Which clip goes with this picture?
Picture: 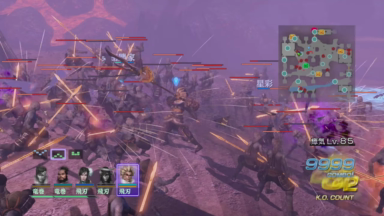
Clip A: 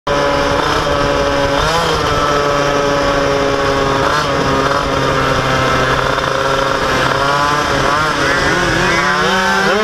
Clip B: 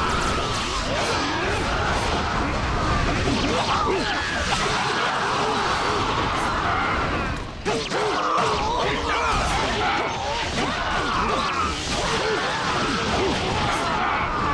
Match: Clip B